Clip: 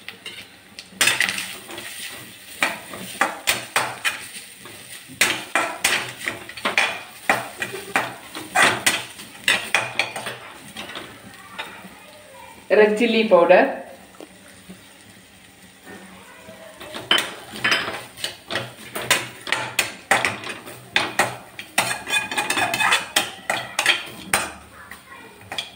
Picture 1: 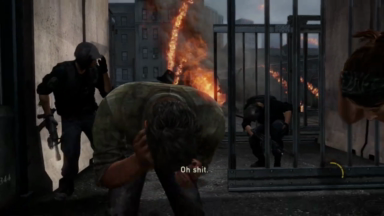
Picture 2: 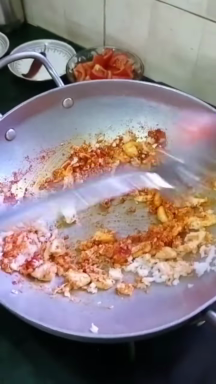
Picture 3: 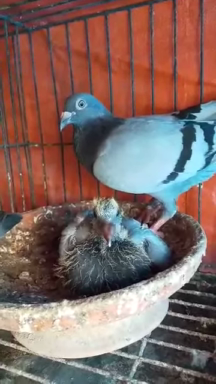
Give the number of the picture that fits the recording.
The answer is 2